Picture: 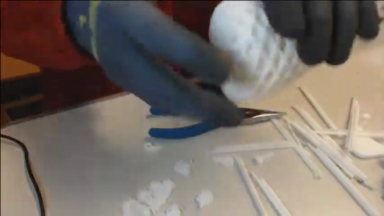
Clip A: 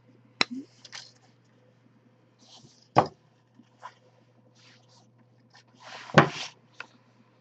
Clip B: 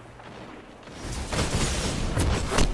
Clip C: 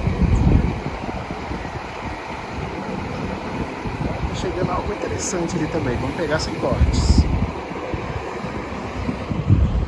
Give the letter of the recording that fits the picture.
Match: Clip A